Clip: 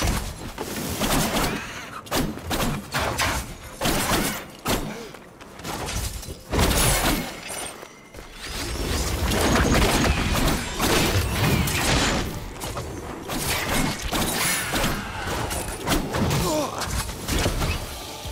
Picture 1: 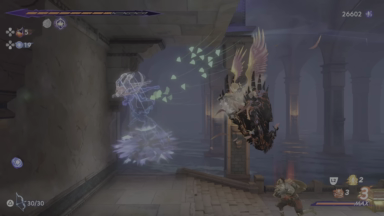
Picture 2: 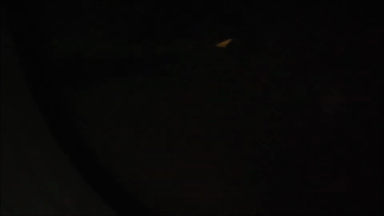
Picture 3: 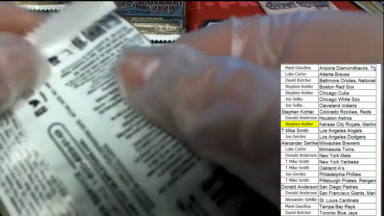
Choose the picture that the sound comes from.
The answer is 1